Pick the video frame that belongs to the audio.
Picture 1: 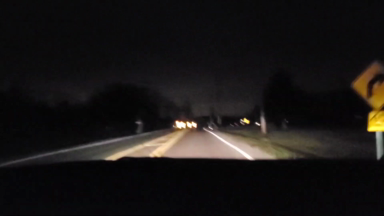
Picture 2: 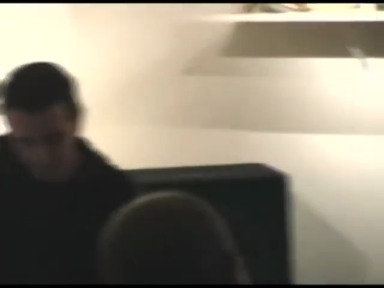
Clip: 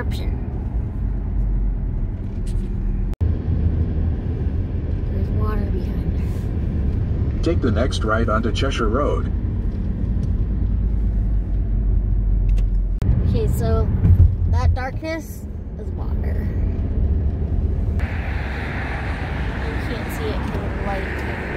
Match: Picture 1